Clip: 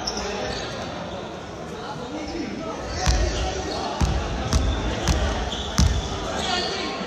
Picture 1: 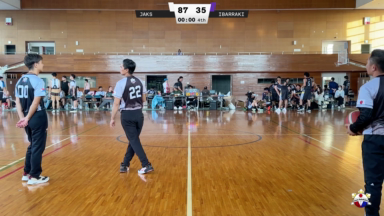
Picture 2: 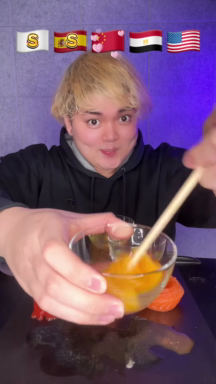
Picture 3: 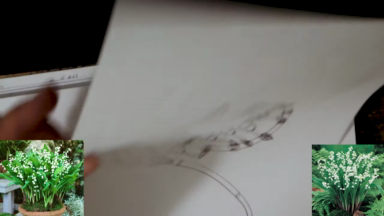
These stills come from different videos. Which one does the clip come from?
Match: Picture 1